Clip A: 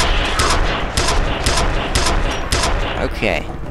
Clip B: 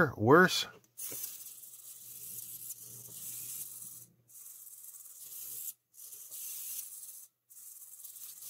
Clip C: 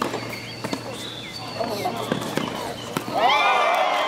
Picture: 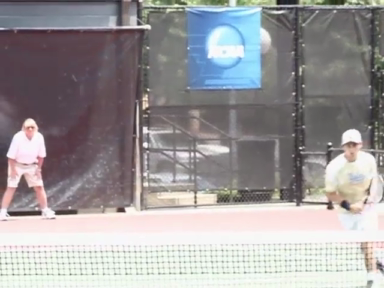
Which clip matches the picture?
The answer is C